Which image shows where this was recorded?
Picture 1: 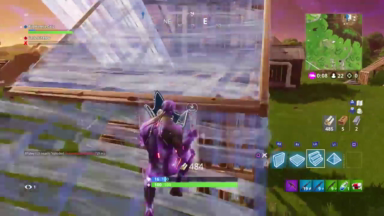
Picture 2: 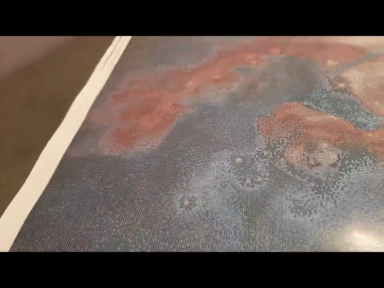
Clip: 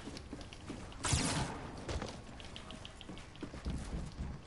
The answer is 1